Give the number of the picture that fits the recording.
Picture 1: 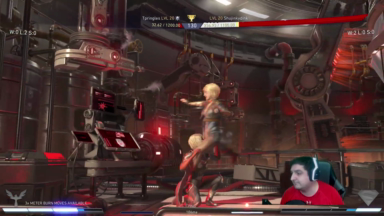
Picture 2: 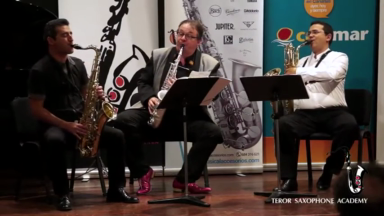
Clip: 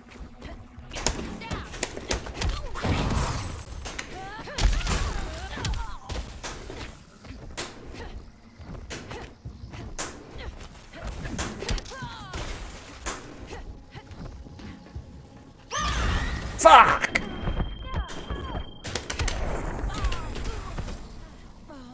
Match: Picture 1